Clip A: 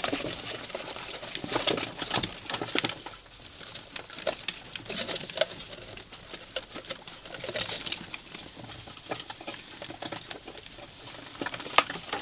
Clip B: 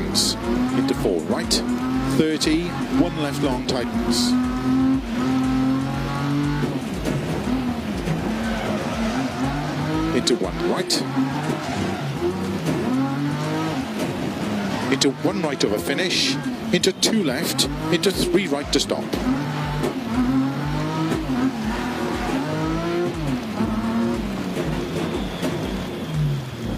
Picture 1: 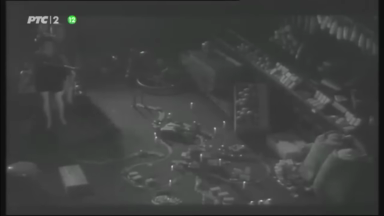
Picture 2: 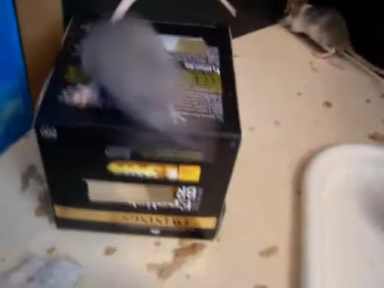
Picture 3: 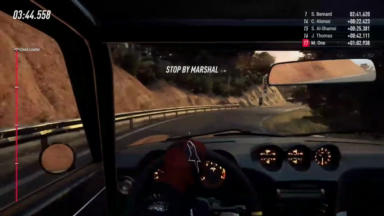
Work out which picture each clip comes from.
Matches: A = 2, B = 3